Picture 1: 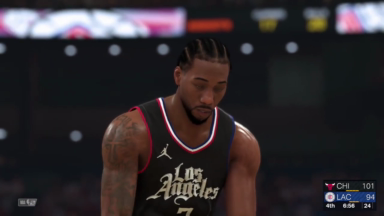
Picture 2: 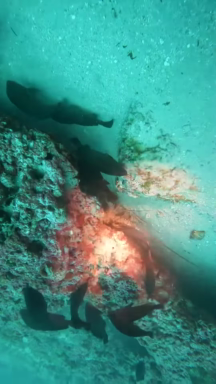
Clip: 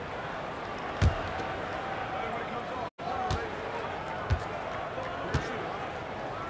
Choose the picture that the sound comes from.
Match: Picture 1